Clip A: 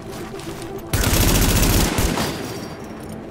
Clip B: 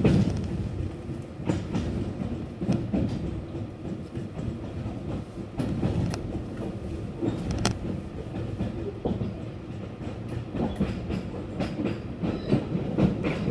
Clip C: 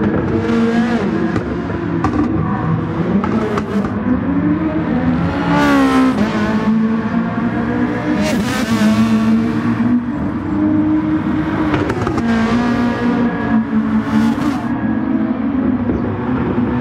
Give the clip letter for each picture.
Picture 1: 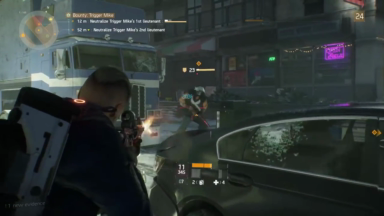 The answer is A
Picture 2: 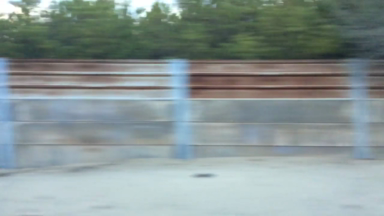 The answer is B